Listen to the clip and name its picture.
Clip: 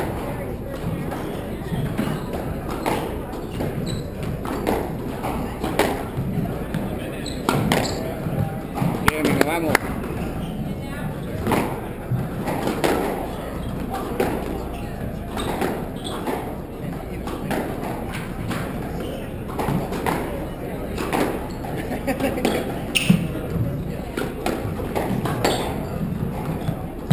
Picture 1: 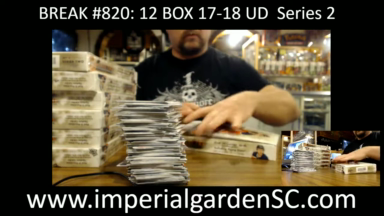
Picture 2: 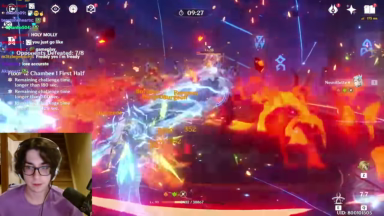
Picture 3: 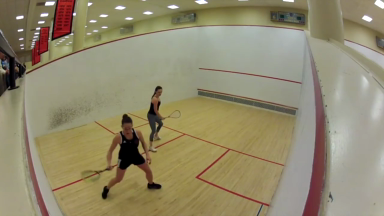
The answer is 3